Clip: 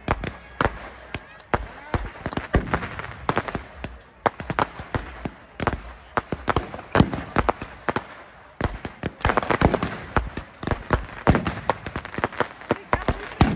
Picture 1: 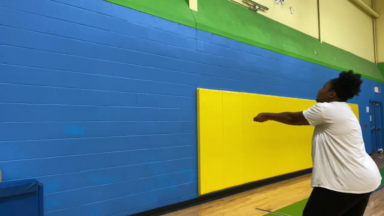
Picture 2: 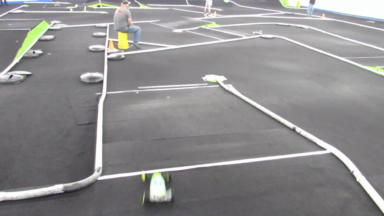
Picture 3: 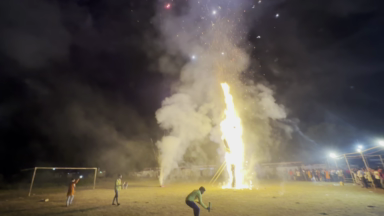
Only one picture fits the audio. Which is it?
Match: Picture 3